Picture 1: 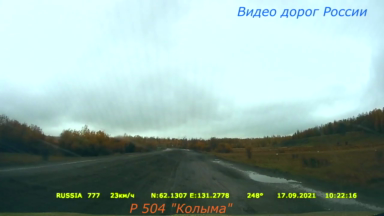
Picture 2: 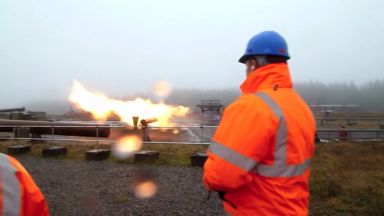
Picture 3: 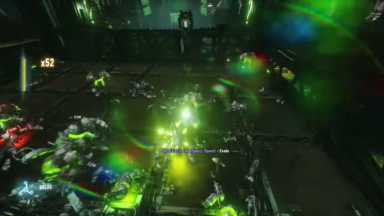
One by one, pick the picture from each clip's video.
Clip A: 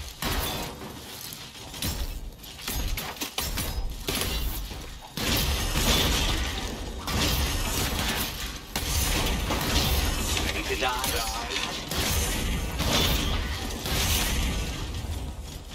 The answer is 3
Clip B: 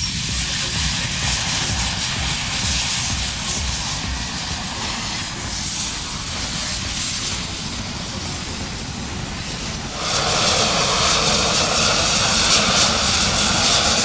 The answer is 2